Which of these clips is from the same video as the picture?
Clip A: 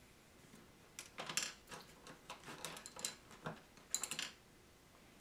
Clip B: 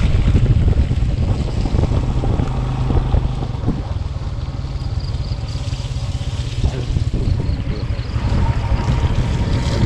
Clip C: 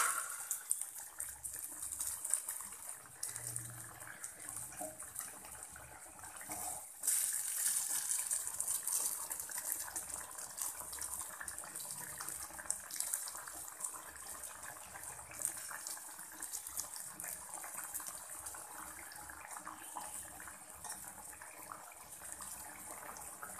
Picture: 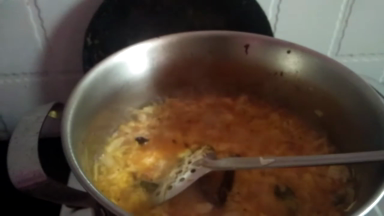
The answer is C